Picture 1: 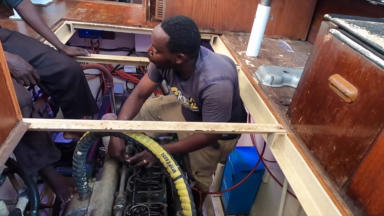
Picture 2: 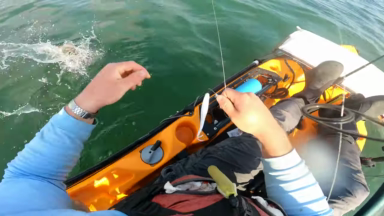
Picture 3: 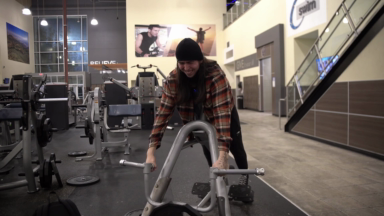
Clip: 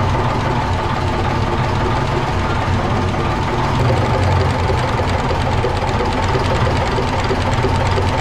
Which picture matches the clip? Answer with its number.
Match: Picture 1